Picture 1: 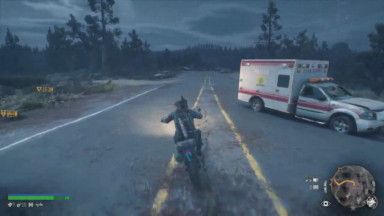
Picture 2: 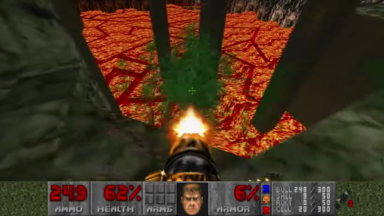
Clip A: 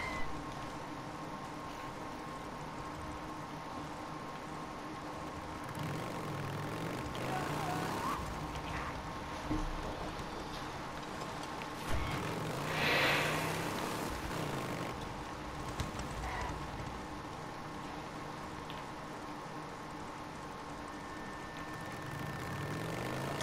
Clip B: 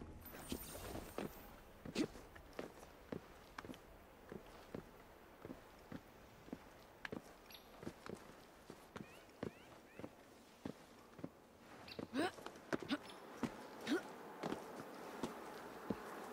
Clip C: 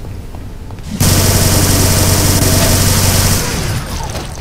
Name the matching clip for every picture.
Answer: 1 A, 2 C